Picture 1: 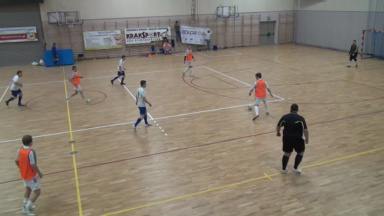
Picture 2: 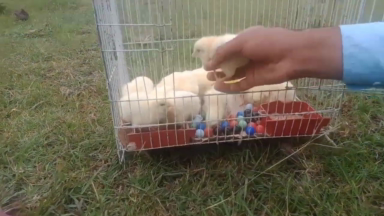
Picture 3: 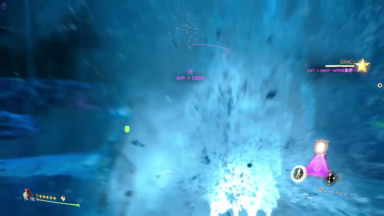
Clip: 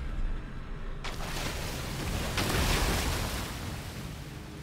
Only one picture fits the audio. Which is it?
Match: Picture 3